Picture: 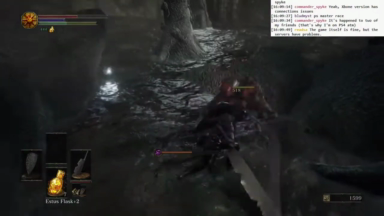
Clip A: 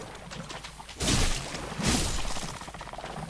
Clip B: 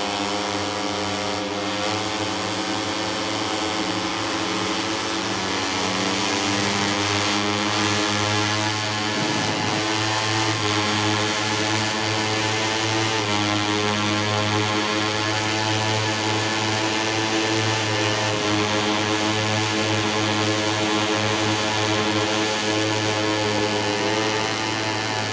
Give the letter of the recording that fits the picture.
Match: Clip A